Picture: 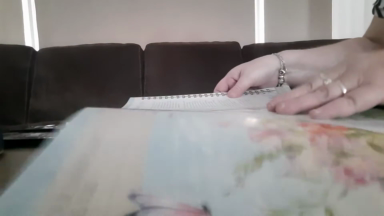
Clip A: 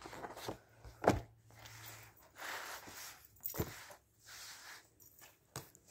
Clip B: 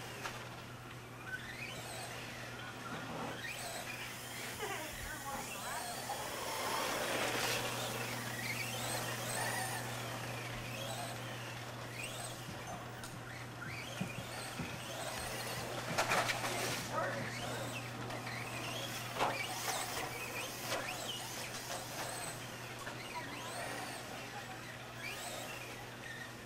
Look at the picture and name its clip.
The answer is A